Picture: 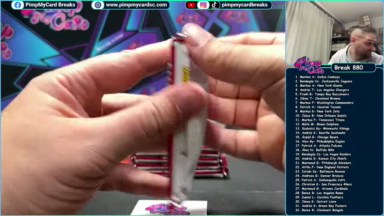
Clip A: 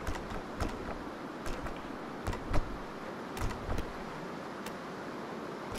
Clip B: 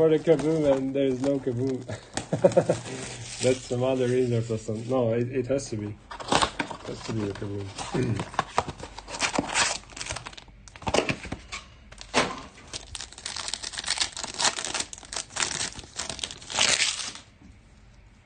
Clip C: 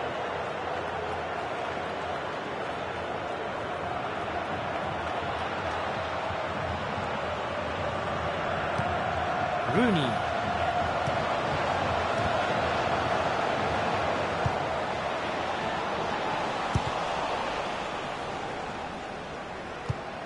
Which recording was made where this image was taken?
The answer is B